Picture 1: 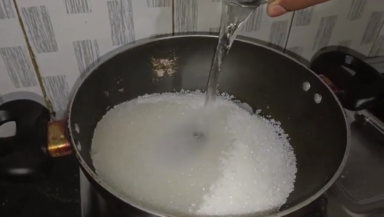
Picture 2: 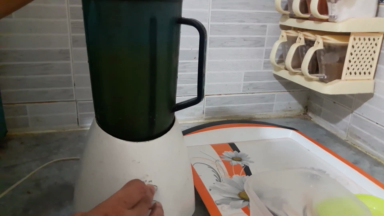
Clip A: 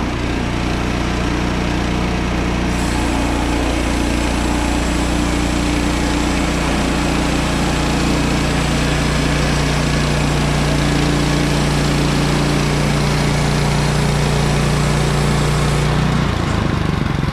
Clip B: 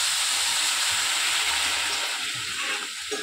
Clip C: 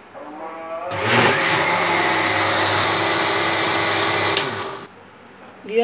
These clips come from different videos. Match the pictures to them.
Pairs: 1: B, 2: C